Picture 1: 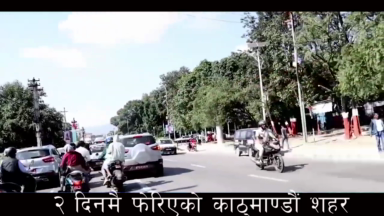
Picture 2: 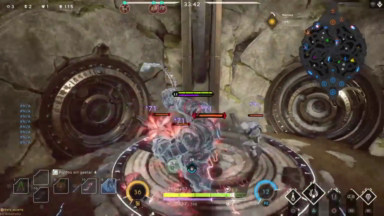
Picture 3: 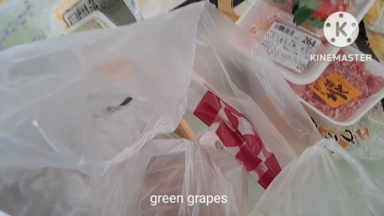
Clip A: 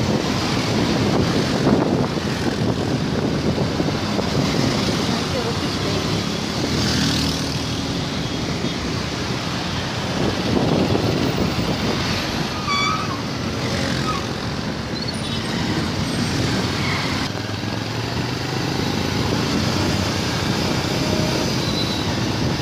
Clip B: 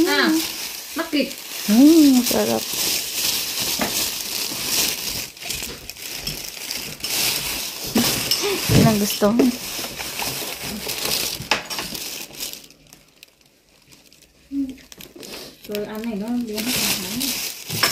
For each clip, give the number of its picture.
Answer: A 1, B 3